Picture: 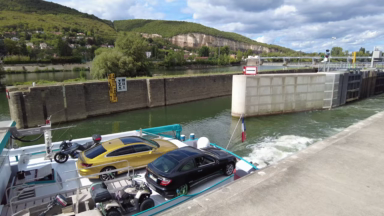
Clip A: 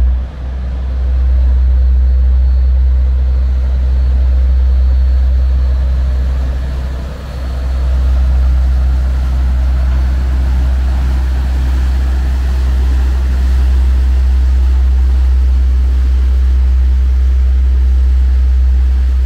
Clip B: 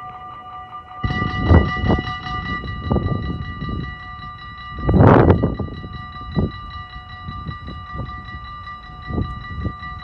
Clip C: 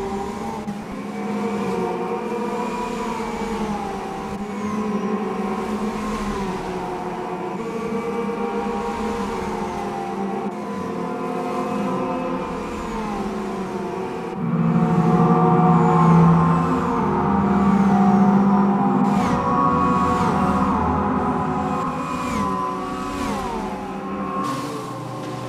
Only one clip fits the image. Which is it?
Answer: A